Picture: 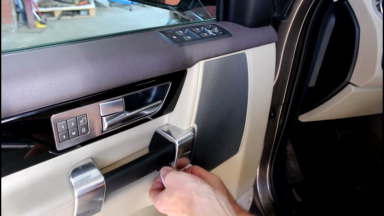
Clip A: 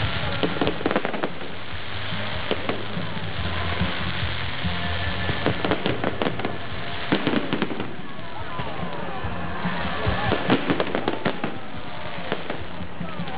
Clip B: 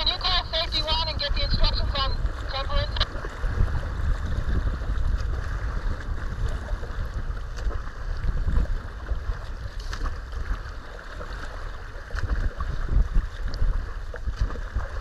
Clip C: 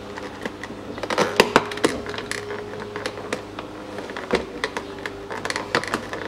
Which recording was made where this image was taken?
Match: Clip C